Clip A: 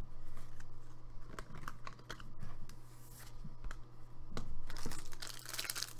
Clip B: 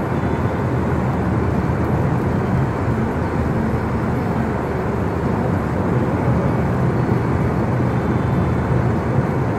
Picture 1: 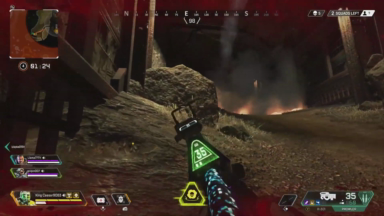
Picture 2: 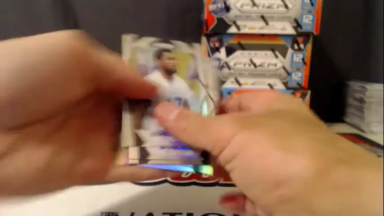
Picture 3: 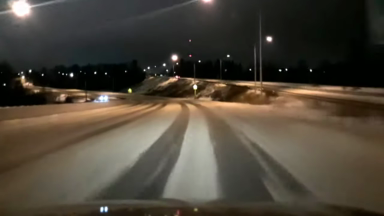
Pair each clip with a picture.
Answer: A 2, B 3